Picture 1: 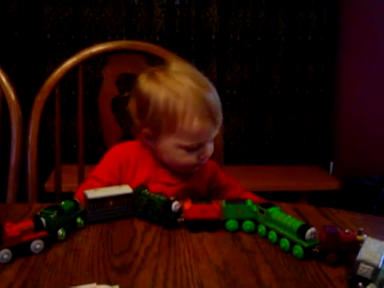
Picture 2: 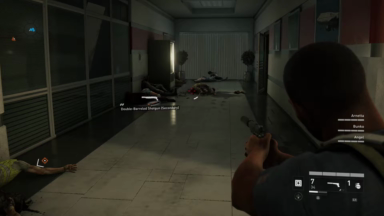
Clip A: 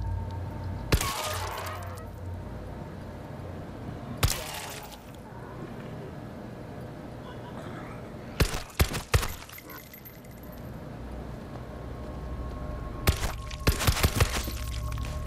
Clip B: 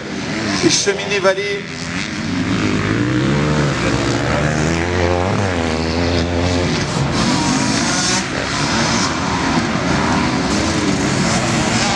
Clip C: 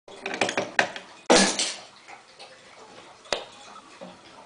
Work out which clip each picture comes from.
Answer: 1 C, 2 A